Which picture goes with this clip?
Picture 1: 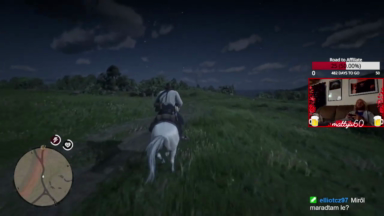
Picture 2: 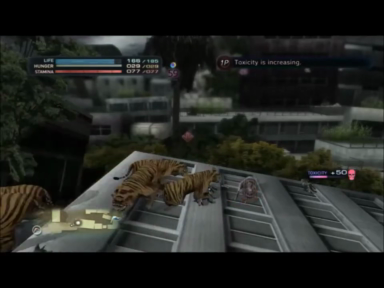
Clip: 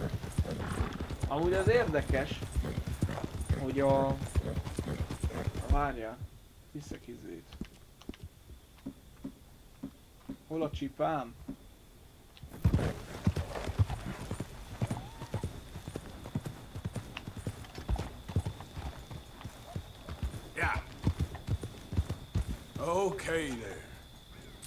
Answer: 1